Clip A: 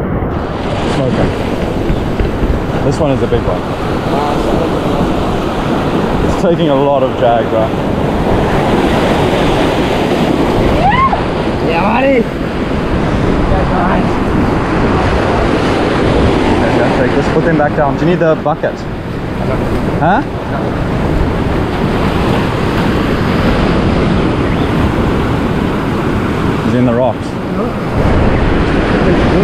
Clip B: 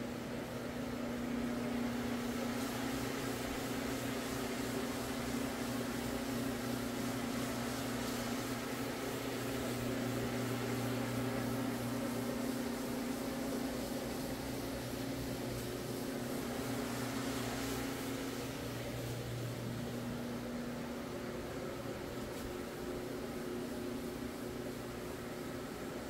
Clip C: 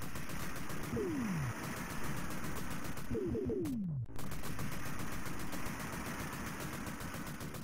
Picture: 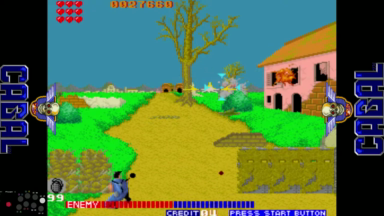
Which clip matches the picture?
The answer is C